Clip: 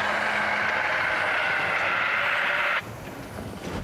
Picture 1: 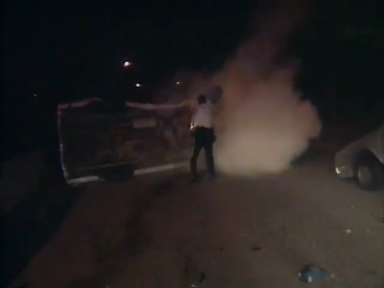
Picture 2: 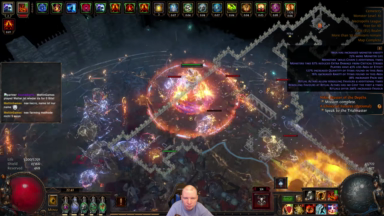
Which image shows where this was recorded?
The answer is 1